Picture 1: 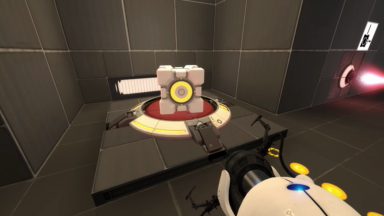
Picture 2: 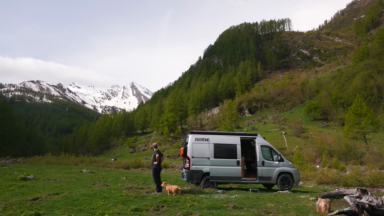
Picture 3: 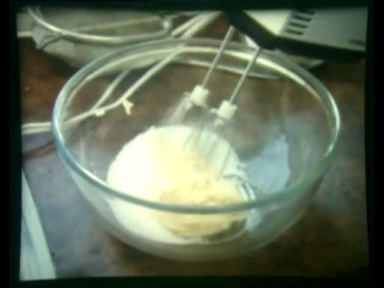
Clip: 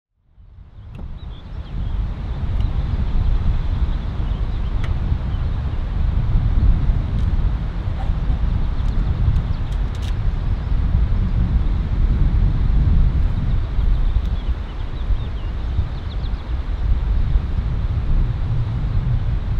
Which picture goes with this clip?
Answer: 2